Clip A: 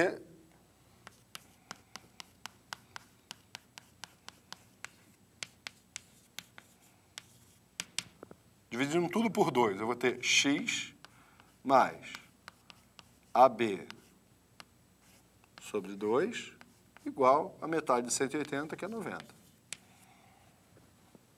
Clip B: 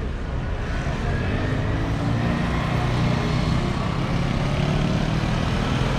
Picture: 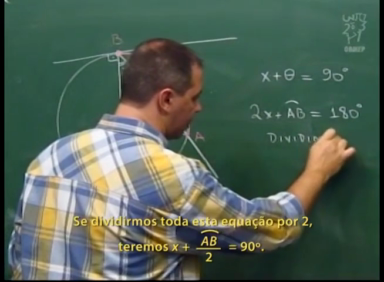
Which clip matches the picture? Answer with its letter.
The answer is A